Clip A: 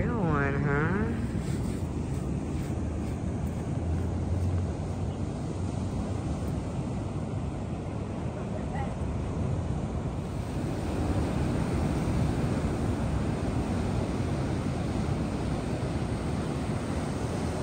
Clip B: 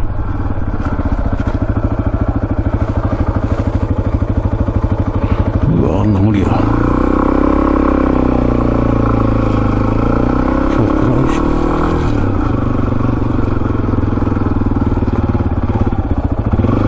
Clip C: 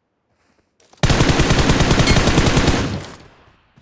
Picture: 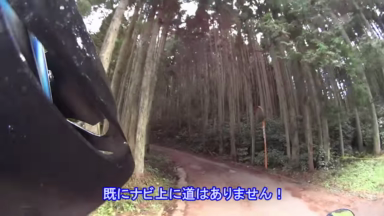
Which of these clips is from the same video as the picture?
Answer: B